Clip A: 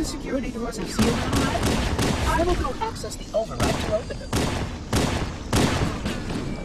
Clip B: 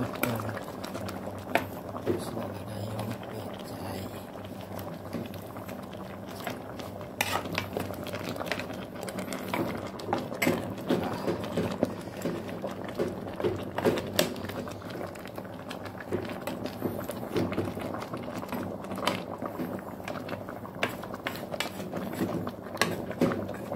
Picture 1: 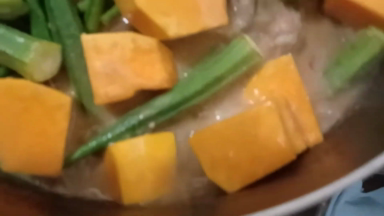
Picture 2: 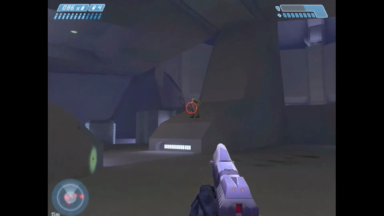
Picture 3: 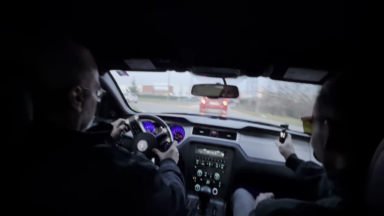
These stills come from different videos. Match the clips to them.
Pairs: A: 2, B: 1